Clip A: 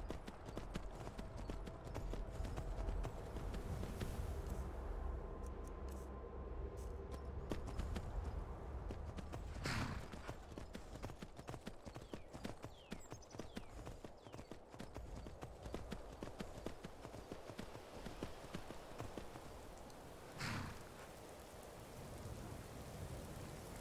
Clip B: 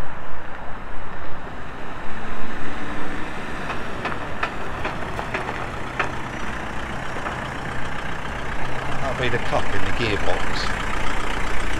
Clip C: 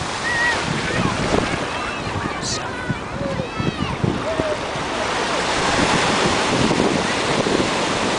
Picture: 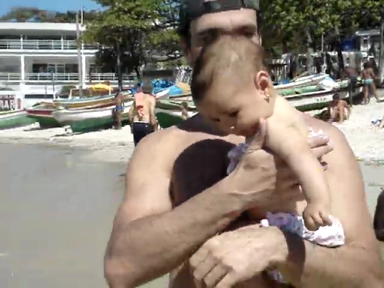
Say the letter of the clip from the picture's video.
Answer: C